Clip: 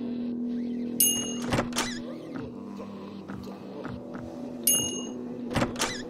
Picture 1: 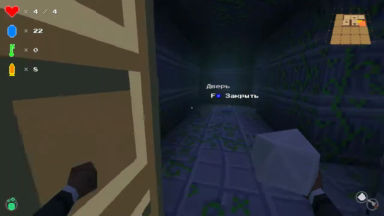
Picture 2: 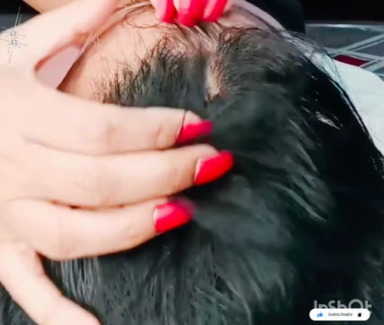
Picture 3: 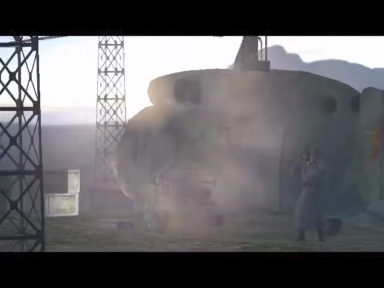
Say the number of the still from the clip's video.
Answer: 1